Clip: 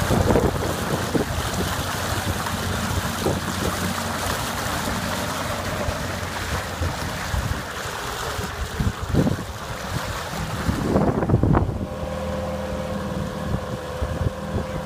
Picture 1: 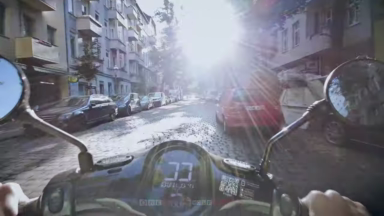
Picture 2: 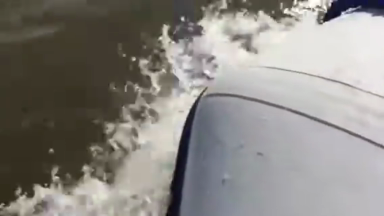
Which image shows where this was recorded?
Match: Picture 2